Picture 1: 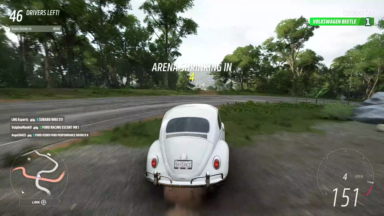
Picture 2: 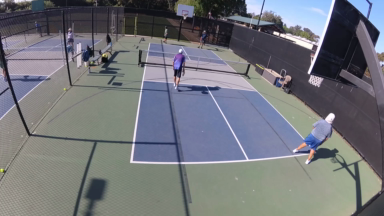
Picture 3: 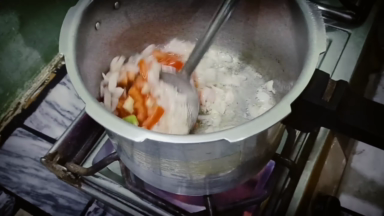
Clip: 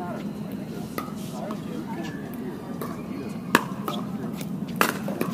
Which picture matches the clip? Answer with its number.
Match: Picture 2